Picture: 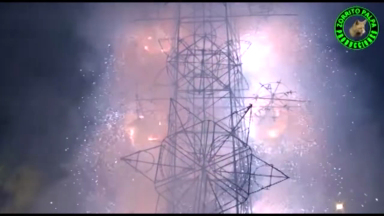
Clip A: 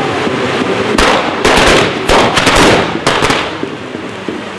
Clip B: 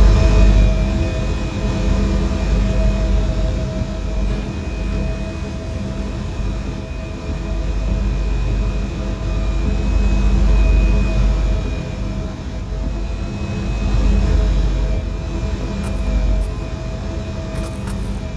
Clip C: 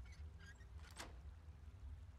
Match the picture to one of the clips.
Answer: A